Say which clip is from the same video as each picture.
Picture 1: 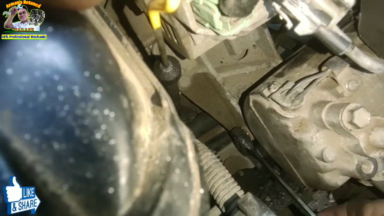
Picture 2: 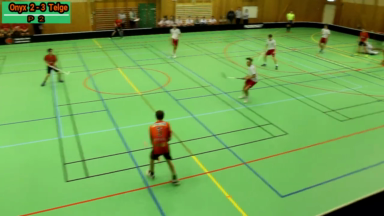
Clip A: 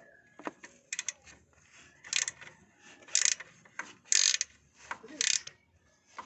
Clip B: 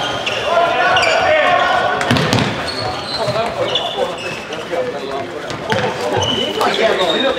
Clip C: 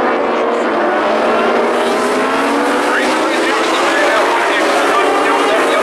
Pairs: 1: A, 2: B